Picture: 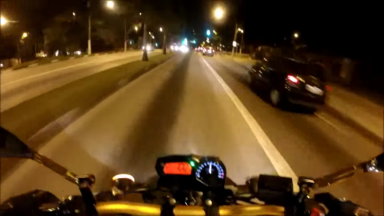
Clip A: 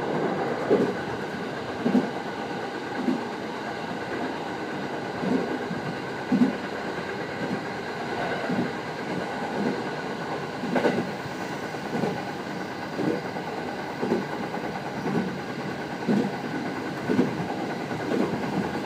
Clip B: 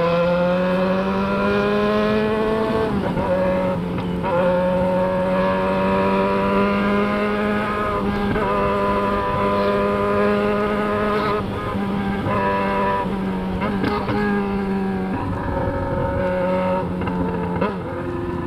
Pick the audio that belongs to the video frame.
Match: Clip B